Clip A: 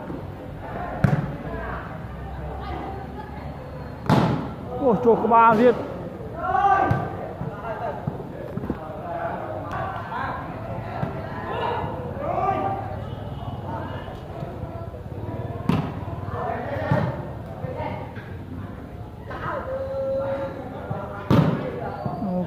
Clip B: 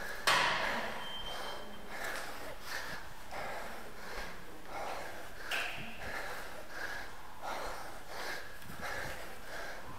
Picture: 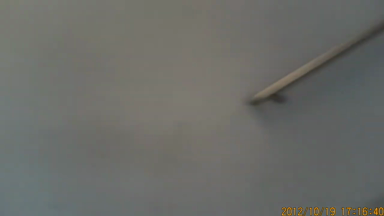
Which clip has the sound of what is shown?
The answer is B